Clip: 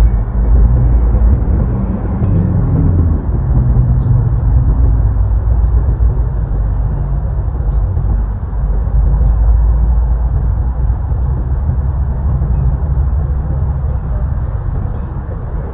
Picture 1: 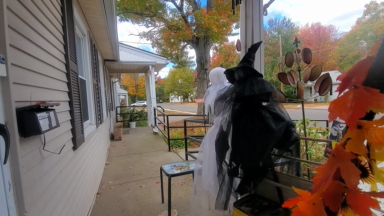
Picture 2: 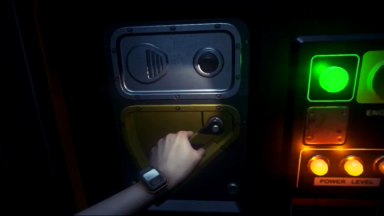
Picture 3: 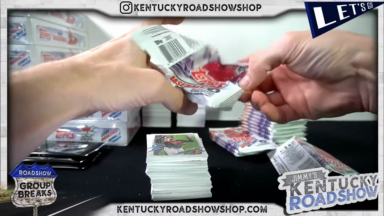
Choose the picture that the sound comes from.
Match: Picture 1